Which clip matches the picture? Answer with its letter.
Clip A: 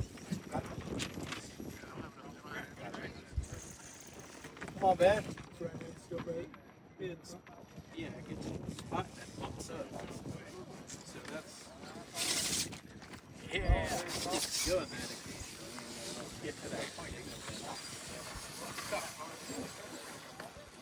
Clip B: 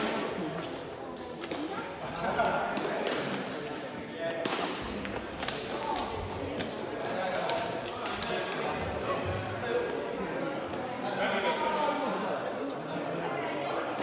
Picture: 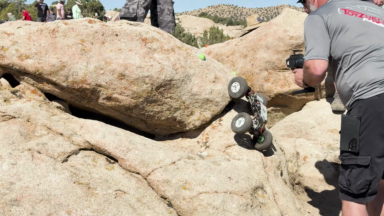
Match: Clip A